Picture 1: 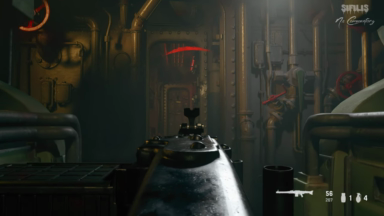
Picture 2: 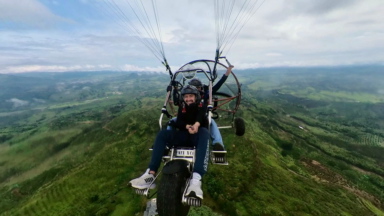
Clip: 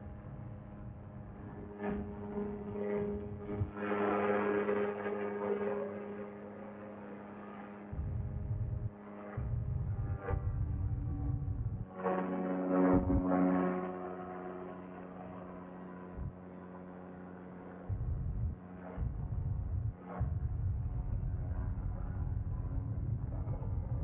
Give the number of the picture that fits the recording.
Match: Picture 2